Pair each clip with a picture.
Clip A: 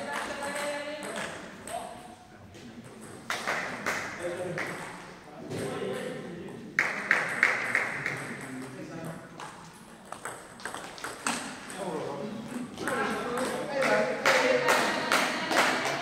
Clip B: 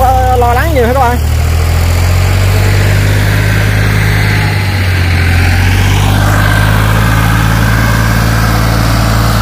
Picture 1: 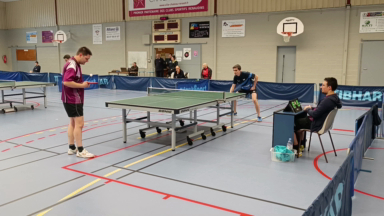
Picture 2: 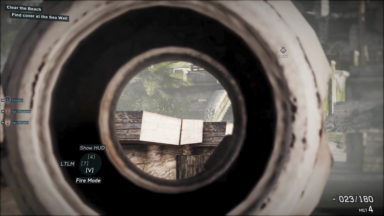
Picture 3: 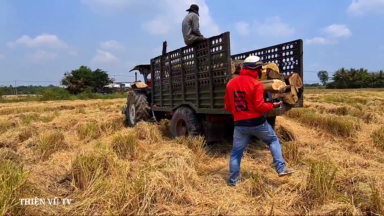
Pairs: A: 1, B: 3